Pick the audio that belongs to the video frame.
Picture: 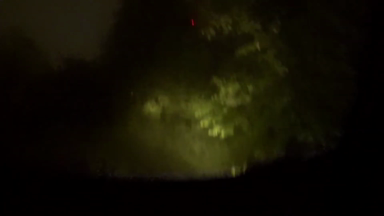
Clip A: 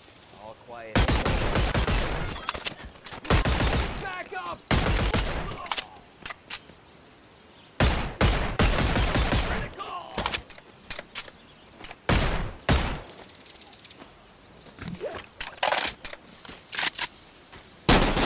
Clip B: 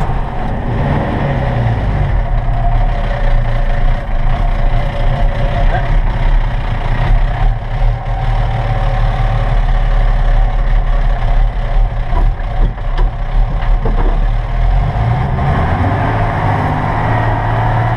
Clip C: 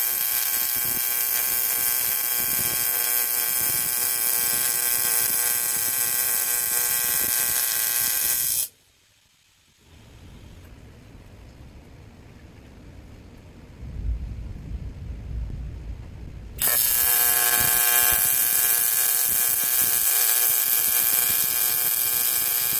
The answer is B